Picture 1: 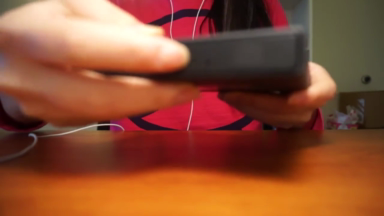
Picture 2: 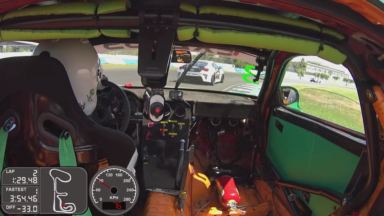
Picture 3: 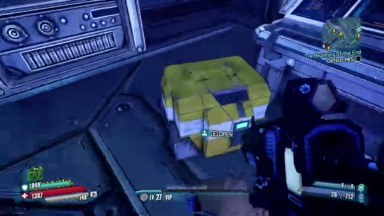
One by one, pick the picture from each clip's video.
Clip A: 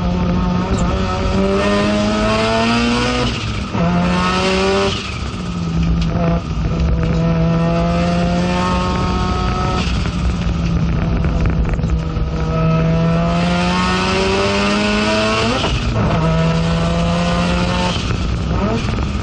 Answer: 2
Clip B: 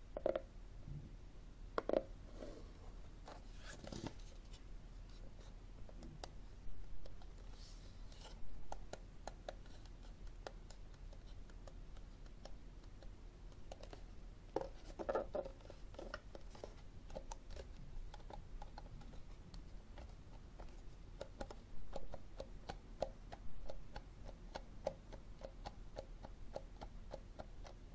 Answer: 1